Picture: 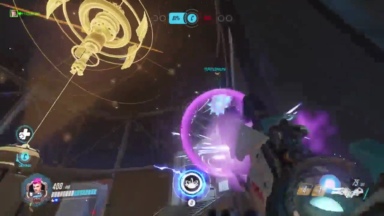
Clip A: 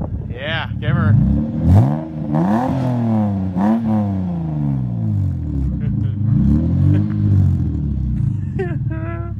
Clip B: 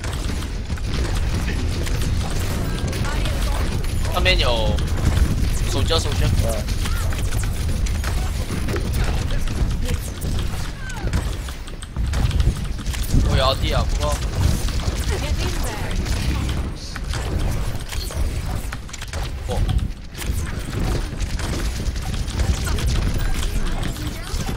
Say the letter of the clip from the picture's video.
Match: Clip B